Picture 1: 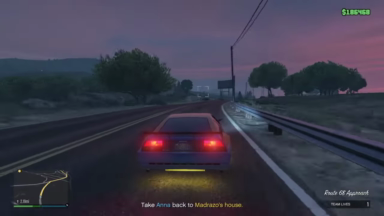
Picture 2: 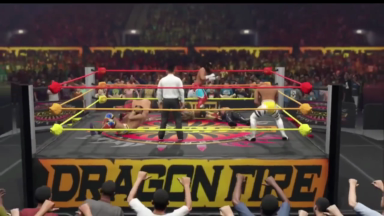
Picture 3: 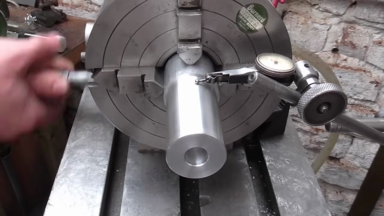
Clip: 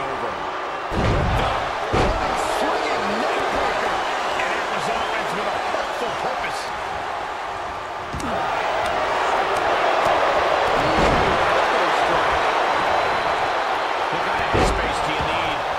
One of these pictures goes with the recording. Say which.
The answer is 2